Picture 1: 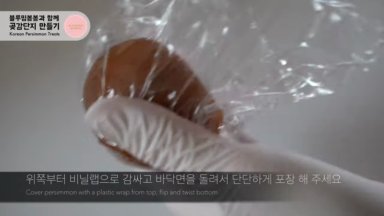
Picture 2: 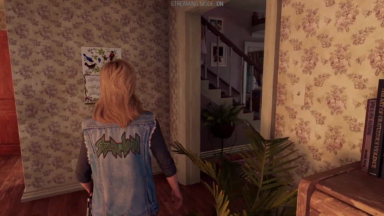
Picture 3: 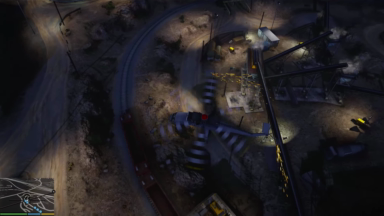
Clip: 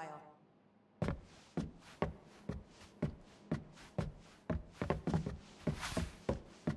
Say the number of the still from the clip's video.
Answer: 2